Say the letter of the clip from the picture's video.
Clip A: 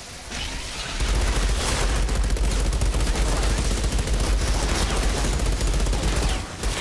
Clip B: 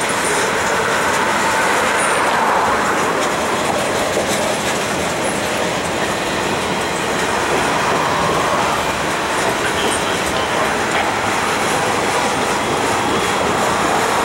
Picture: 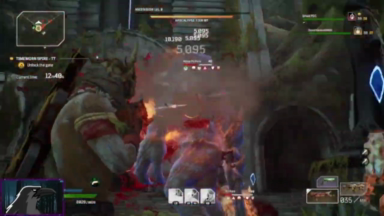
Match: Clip A